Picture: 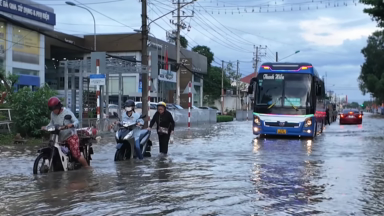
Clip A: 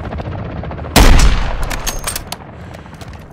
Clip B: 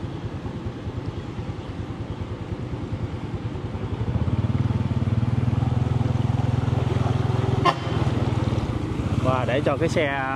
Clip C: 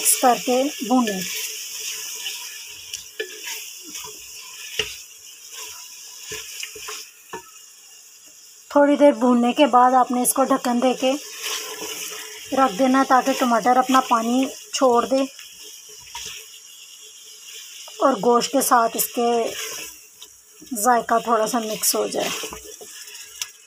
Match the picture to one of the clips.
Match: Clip B